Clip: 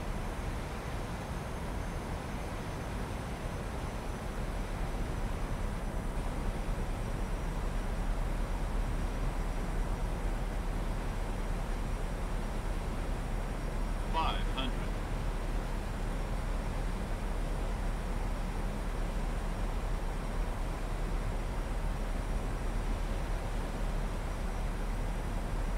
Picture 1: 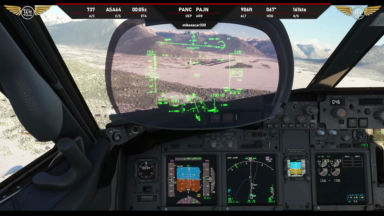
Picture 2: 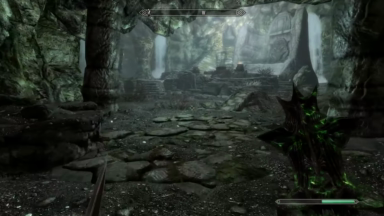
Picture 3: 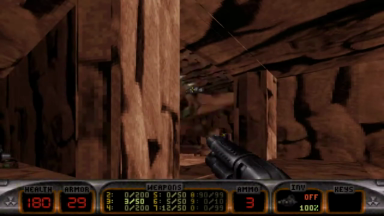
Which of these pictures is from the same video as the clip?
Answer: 1